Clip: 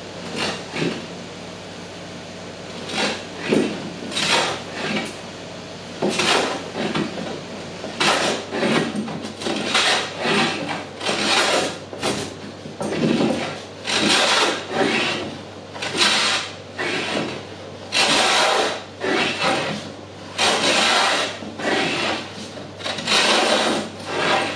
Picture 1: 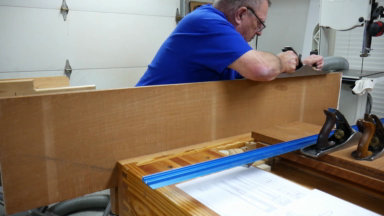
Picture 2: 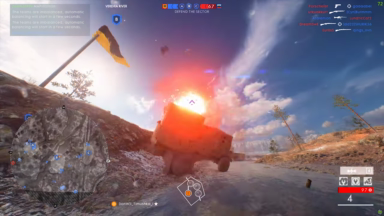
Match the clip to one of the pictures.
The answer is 1